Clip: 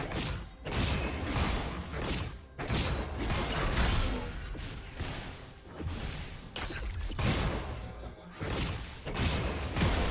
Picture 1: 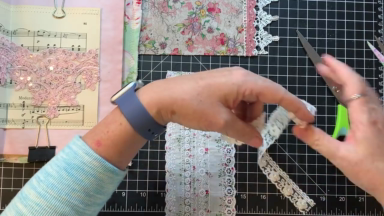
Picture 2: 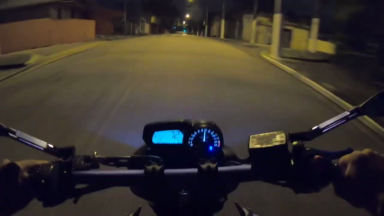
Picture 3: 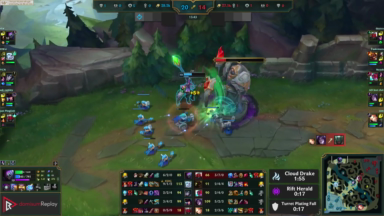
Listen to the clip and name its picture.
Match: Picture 3